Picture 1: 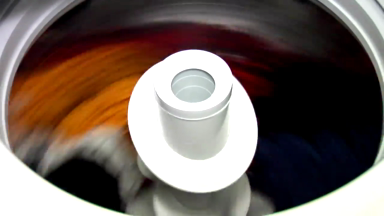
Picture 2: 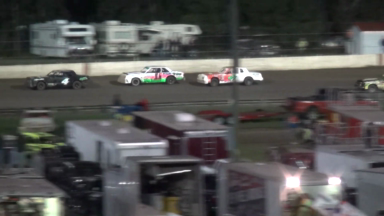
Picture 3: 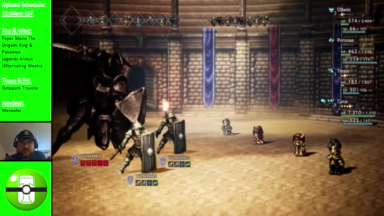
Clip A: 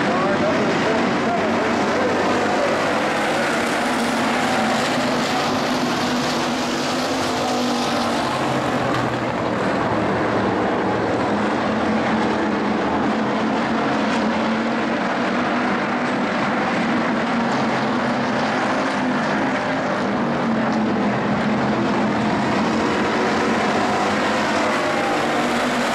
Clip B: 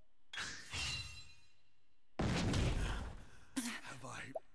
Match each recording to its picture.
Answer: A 2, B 3